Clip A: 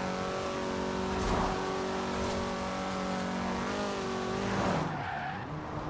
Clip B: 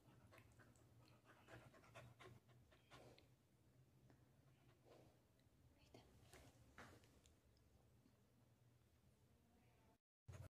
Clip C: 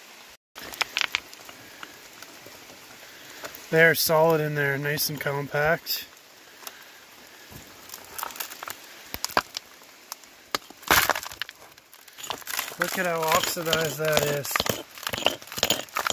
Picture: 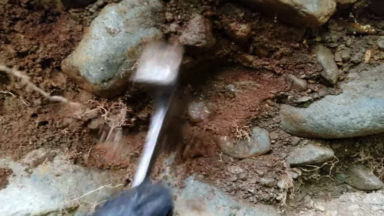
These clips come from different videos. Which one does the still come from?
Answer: C